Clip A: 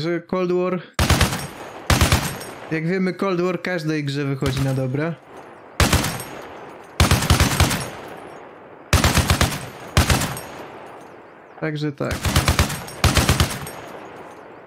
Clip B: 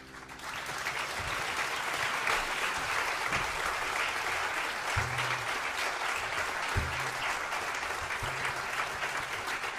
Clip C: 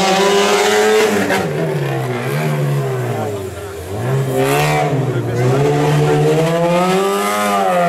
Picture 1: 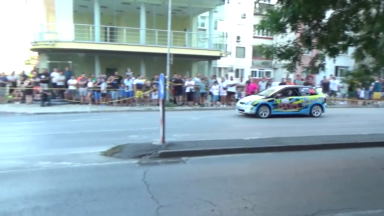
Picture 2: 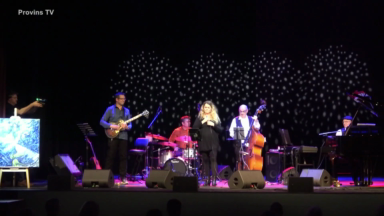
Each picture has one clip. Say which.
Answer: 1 C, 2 B